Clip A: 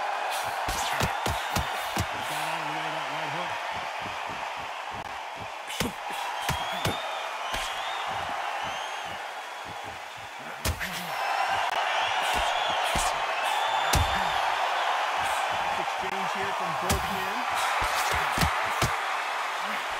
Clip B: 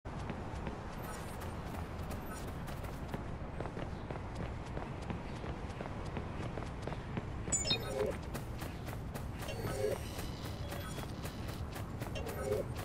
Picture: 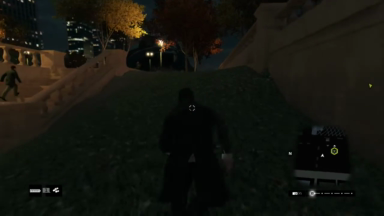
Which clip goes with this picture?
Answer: B